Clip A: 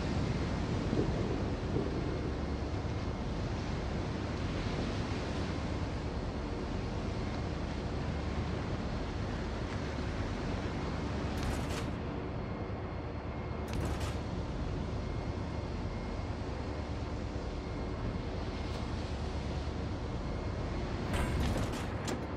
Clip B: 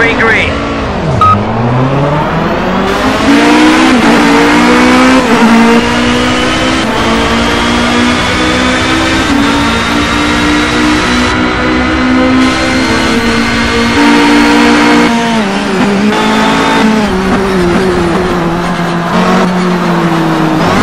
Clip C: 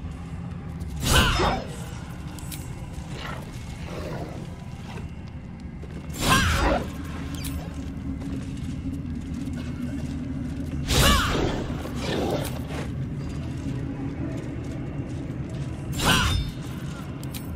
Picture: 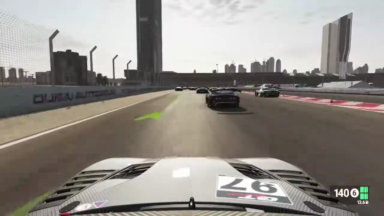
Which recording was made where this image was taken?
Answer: B